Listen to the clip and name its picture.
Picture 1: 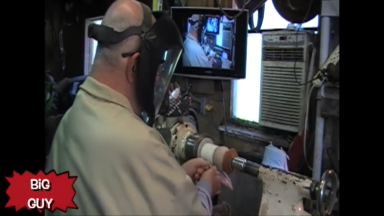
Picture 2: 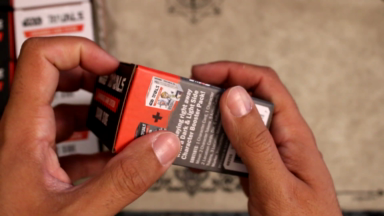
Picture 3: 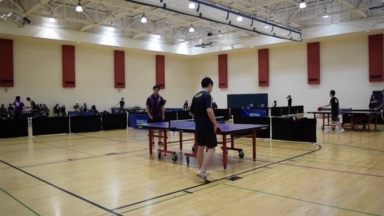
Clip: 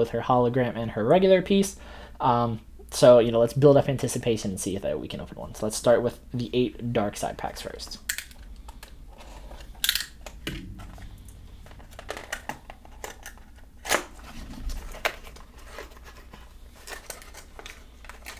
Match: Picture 2